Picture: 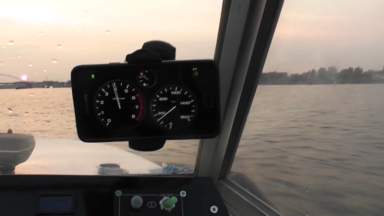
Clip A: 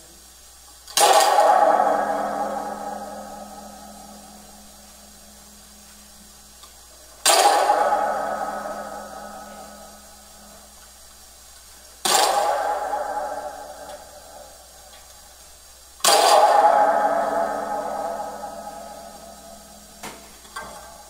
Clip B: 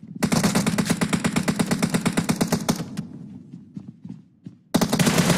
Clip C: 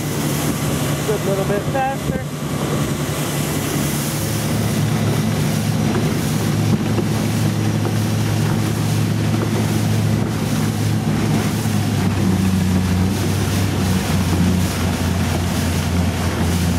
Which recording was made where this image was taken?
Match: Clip C